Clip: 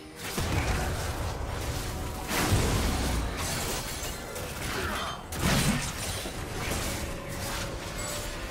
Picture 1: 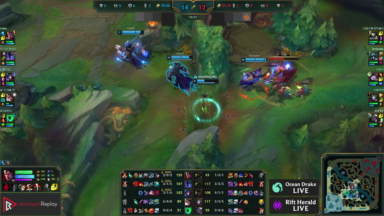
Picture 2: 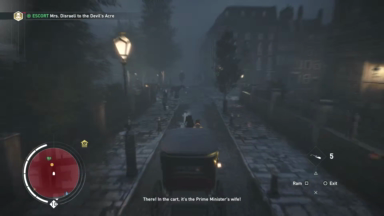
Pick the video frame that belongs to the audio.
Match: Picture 1